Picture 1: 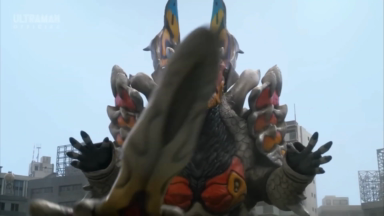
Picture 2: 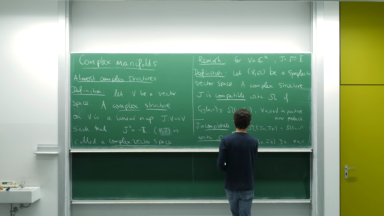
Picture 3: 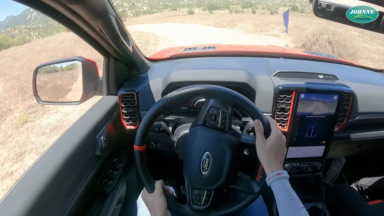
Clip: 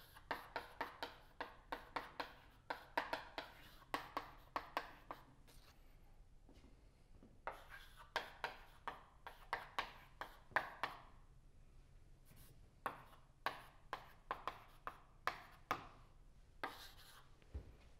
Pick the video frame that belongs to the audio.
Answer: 2